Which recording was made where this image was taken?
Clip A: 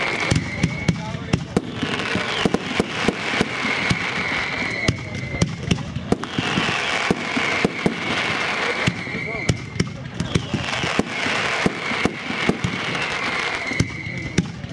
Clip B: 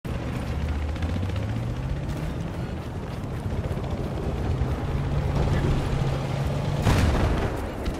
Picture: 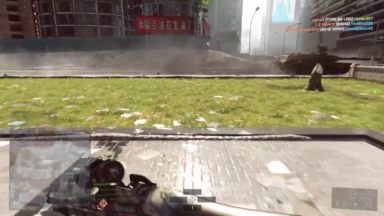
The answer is B